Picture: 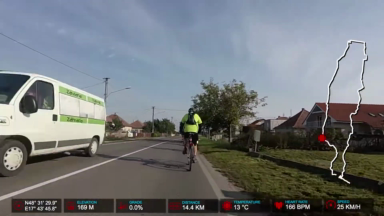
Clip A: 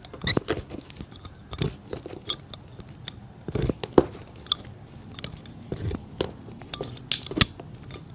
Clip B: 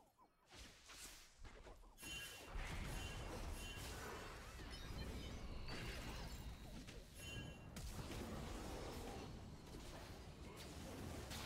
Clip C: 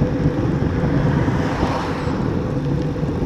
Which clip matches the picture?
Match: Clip C